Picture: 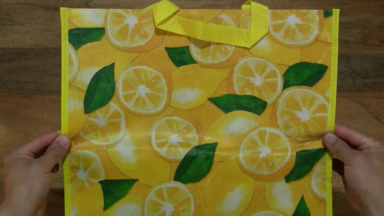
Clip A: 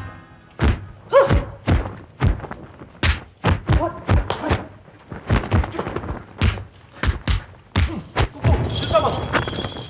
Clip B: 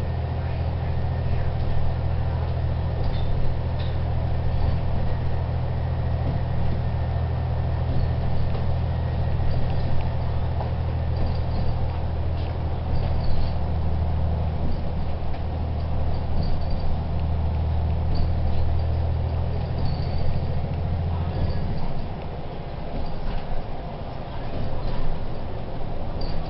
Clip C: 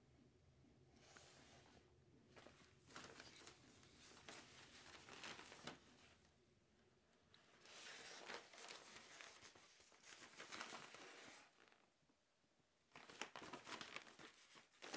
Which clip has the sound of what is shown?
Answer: C